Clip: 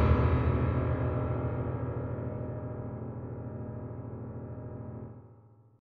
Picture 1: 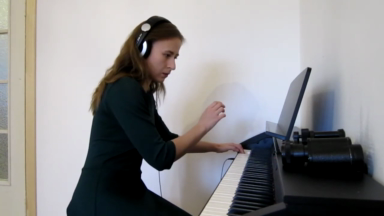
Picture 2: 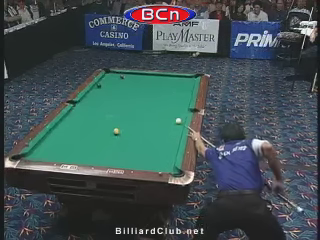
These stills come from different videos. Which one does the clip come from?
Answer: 1